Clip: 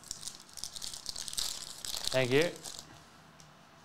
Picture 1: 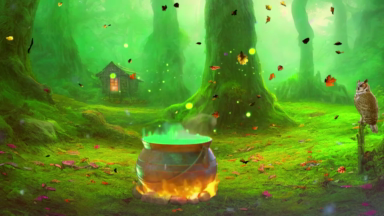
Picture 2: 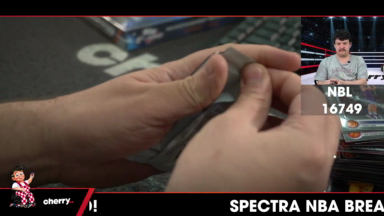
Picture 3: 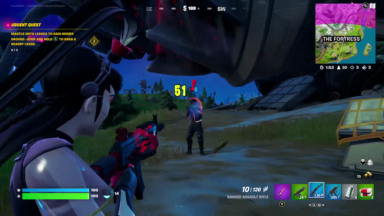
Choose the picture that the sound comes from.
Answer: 2